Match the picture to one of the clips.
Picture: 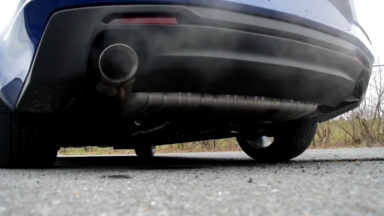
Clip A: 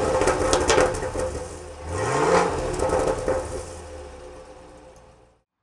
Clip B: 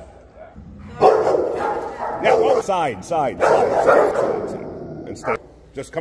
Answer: A